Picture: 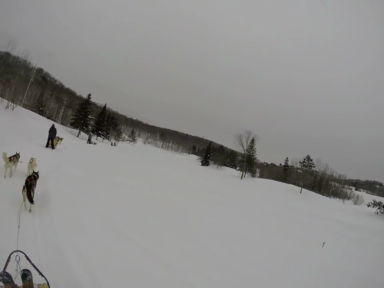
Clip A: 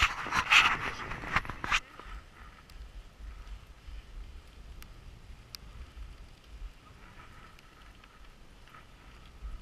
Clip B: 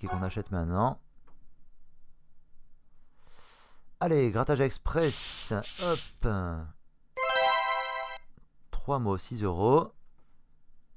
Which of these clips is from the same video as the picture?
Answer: A